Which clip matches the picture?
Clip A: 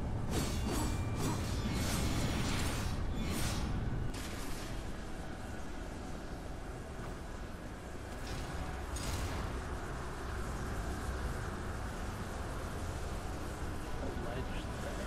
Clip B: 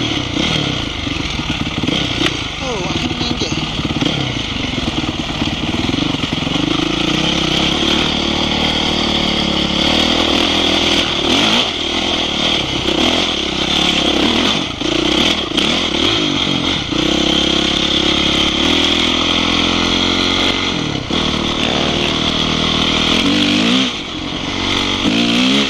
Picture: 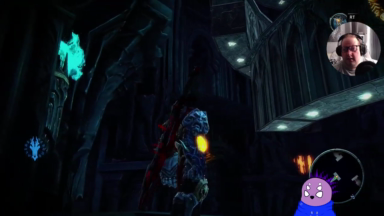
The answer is A